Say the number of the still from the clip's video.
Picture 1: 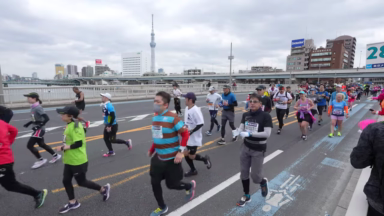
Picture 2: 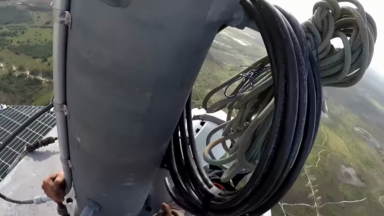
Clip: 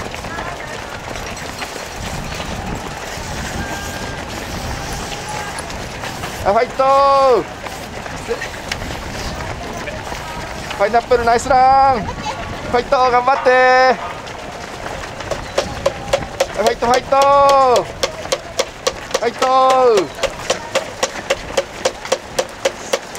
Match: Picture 1